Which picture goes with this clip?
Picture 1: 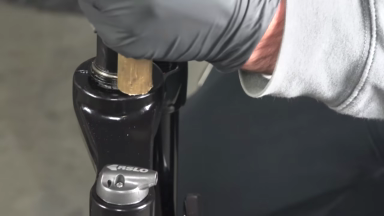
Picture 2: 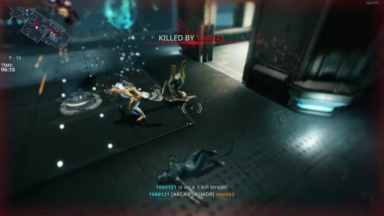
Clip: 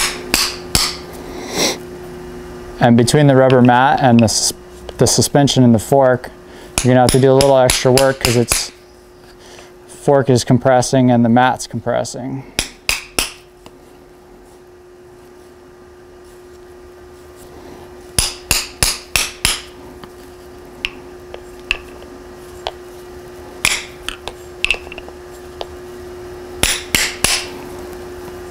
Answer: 1